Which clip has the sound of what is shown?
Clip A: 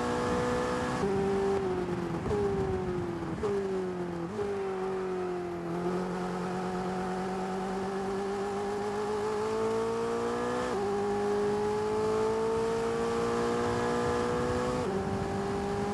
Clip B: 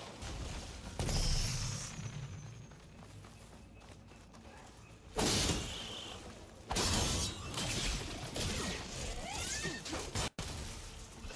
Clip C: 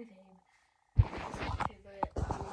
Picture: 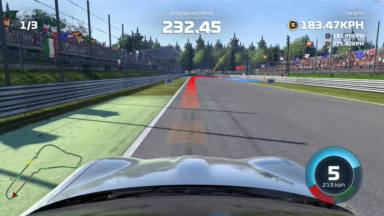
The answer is A